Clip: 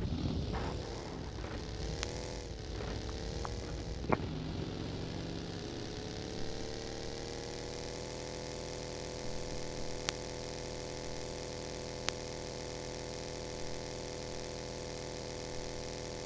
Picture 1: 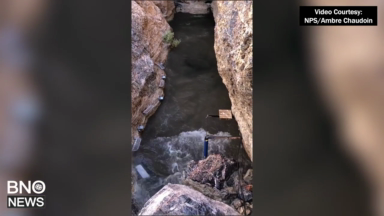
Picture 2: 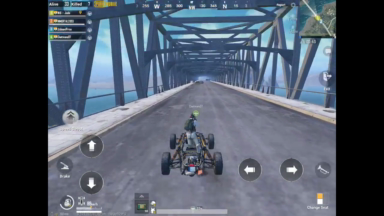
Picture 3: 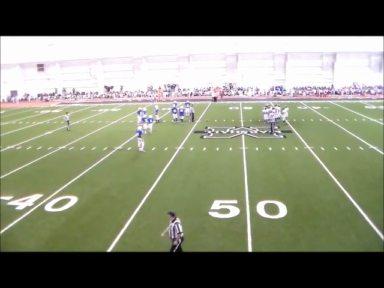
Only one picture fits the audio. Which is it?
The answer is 2